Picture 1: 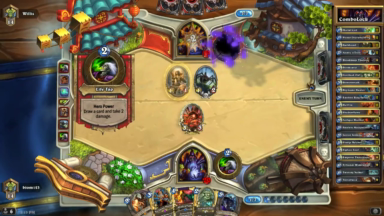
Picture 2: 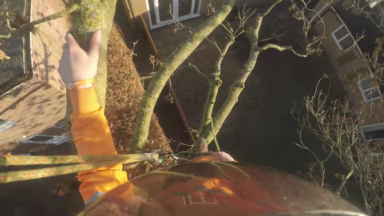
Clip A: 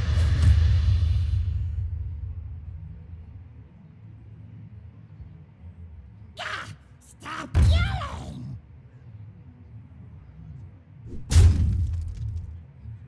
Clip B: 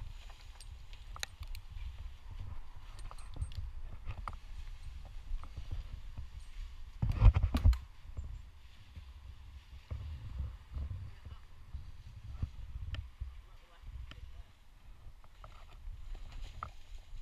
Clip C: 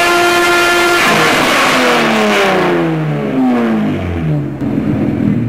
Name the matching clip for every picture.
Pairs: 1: A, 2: B